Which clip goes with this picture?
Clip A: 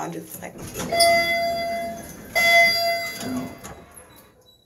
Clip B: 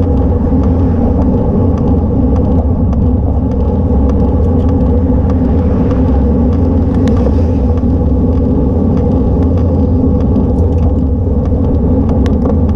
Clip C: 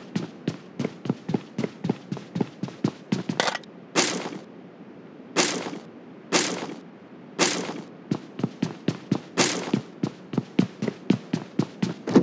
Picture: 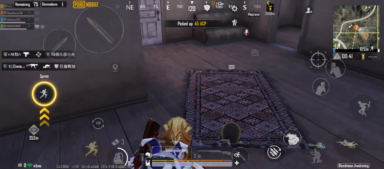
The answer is C